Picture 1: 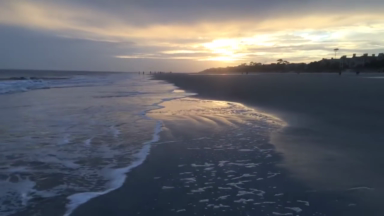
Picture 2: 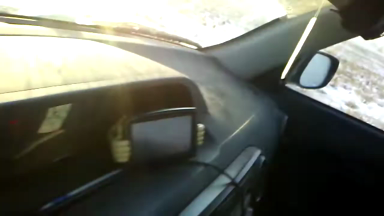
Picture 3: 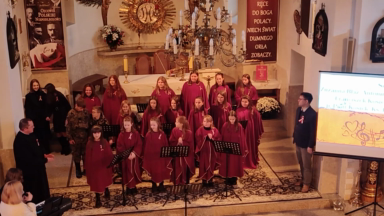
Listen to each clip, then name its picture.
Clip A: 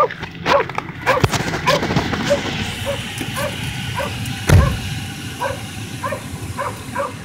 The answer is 2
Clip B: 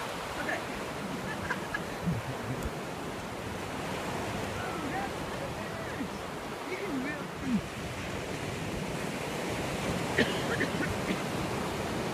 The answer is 1